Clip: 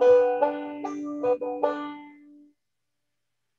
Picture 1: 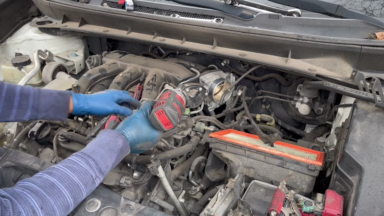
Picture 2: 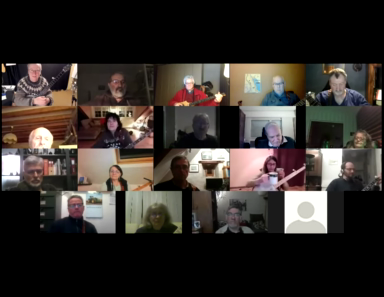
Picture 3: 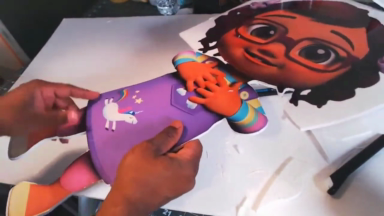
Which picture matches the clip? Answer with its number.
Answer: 2